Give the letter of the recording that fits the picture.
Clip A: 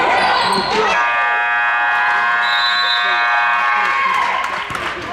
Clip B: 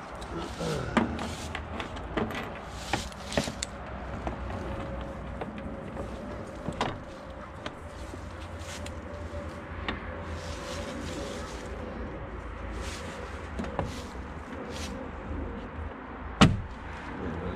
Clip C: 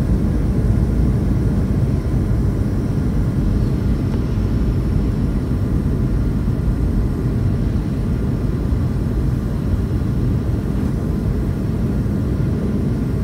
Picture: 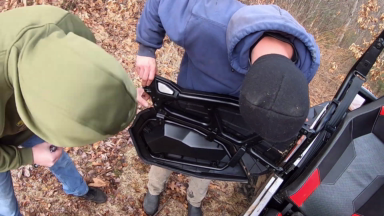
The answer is B